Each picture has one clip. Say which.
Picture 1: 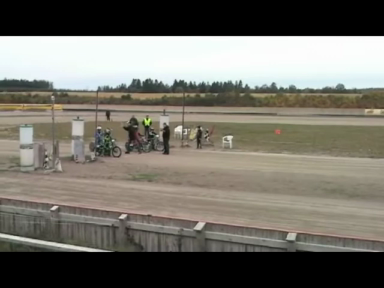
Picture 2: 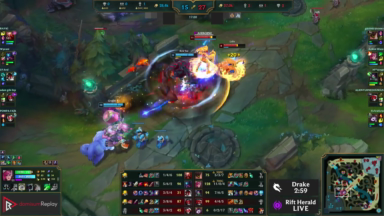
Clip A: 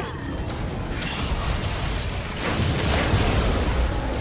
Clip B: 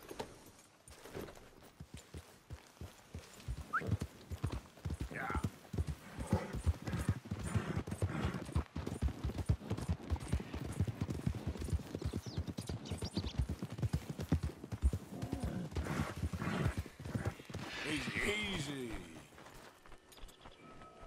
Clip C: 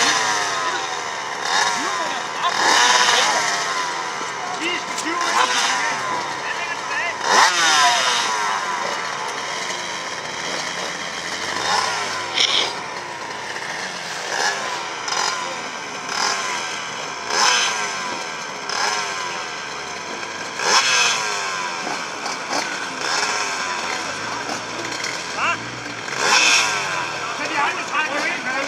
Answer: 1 C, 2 A